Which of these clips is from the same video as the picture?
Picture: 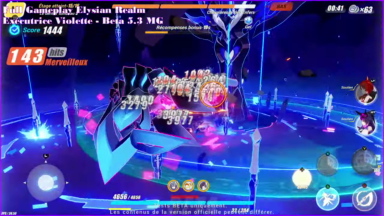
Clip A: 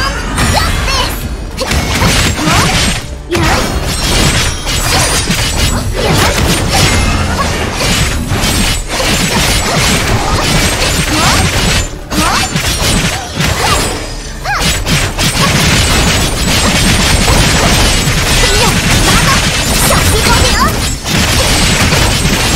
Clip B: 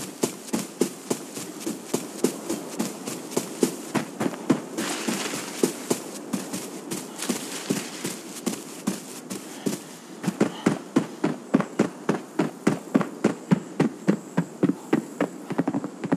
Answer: A